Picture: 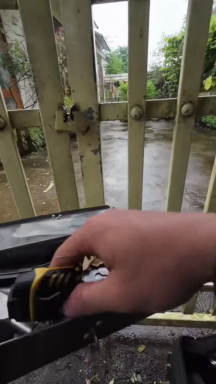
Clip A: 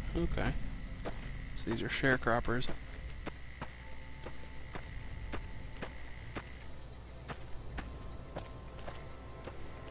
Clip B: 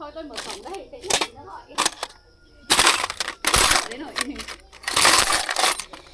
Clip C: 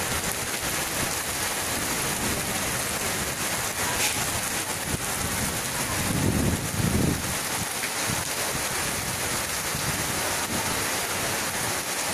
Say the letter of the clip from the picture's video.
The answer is B